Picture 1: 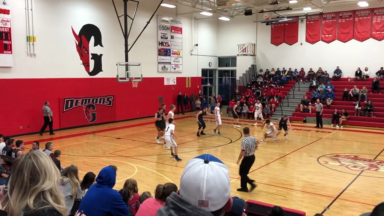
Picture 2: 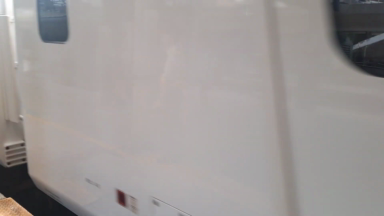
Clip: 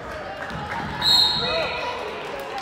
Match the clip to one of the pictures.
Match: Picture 1